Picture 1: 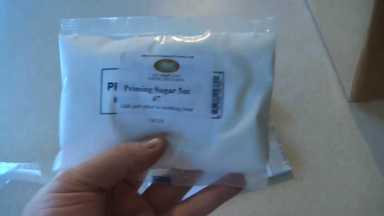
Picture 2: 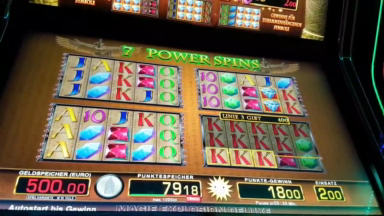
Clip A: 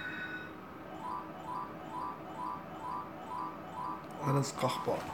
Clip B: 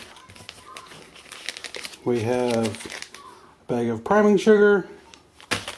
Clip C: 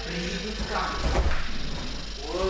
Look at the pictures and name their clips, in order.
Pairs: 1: B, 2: A